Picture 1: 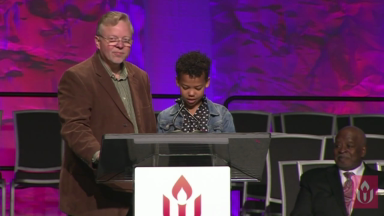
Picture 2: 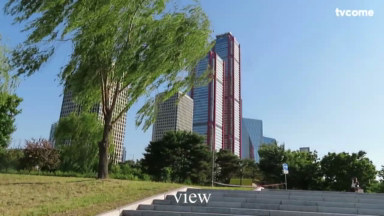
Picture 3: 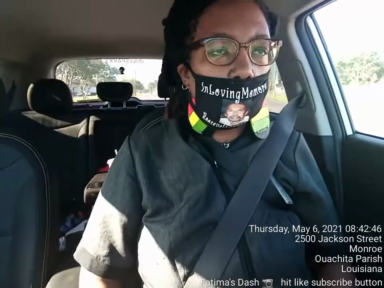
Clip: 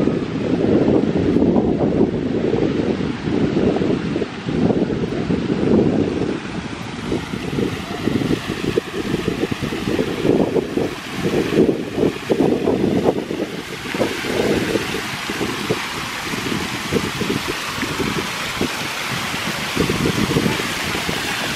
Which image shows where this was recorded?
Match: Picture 2